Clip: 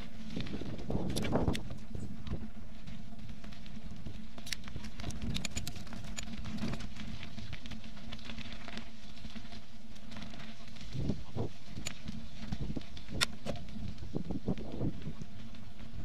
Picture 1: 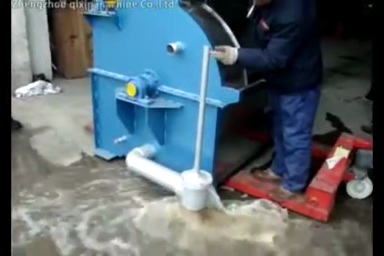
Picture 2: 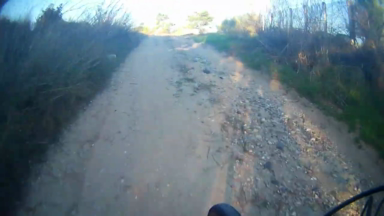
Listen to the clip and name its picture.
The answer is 2